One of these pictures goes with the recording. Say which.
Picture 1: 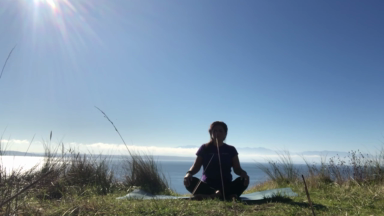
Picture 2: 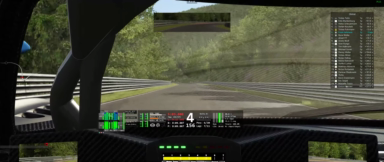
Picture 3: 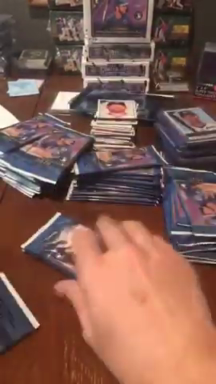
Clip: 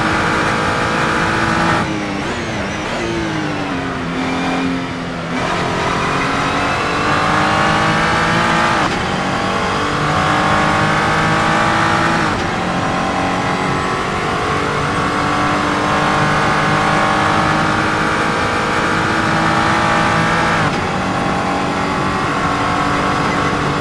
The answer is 2